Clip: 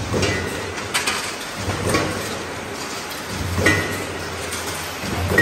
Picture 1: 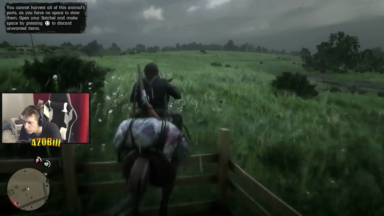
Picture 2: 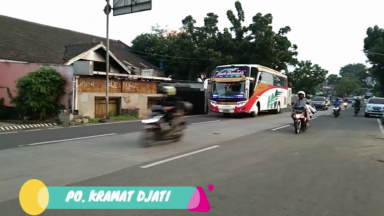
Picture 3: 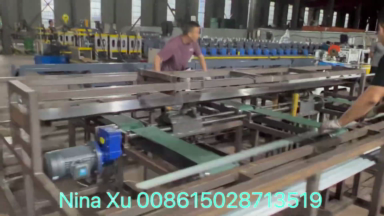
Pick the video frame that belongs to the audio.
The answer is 3